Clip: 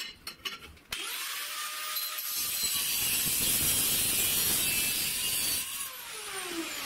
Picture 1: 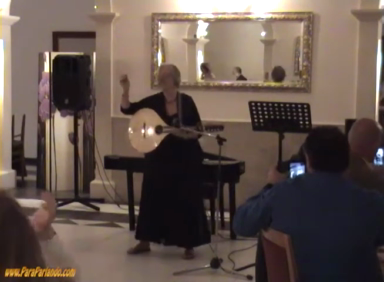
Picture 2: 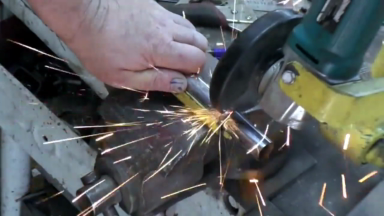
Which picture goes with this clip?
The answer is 2